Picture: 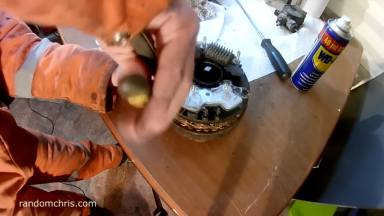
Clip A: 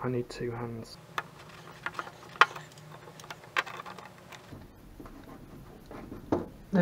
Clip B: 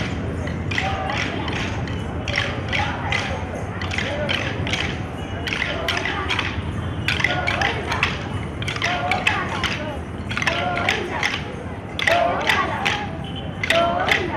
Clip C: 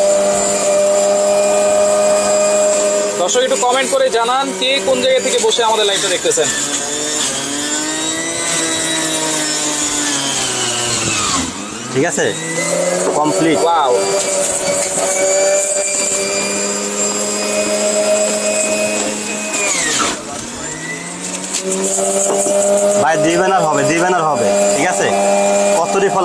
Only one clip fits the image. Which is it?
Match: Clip A